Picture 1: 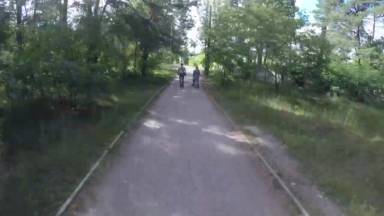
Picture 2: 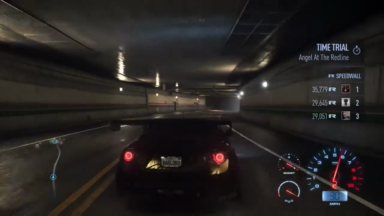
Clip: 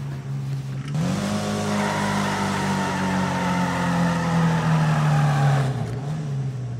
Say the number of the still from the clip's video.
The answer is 2